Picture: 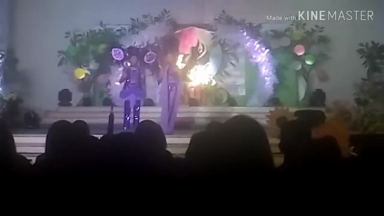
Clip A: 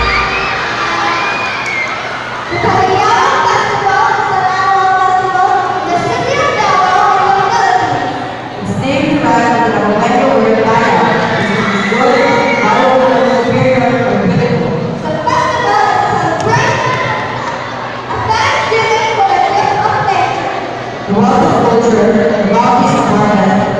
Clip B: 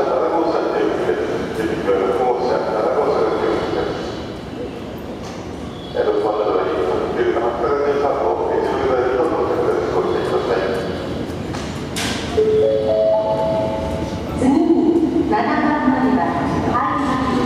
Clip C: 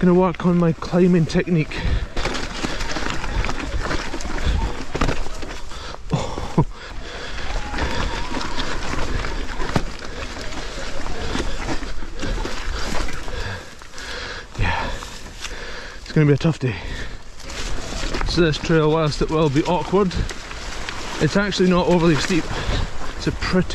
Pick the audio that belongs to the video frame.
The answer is A